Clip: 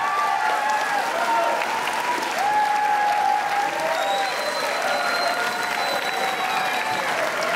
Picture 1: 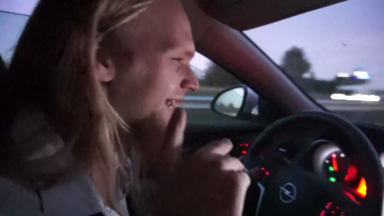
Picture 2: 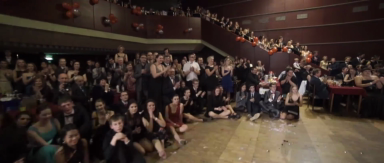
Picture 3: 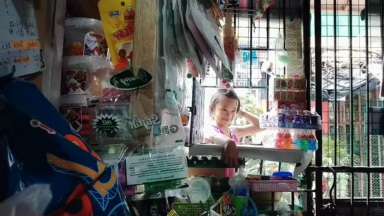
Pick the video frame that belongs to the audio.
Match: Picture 2